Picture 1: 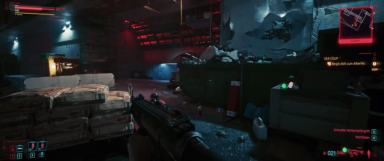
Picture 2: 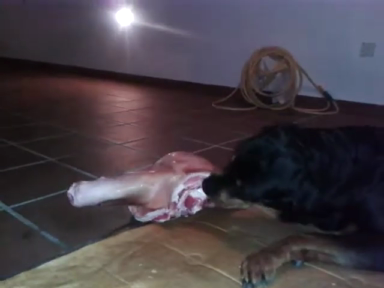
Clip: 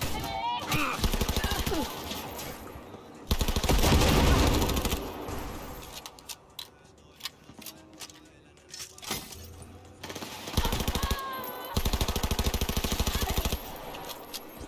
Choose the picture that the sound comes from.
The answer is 1